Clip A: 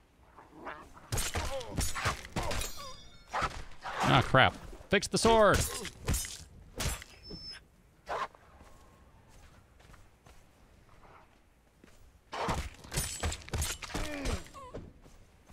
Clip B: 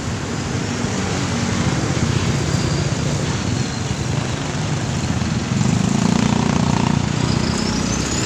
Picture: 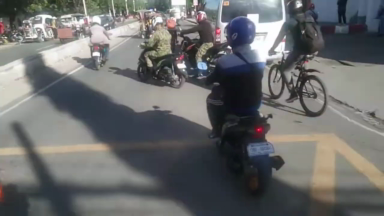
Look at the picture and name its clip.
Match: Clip B